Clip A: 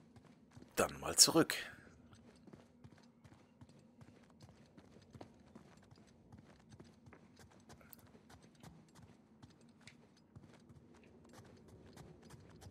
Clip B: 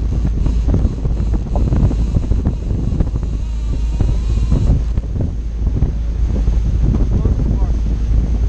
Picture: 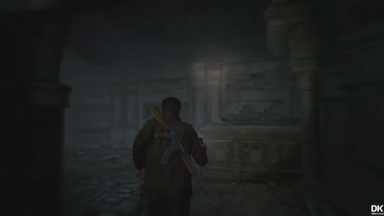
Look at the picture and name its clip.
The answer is A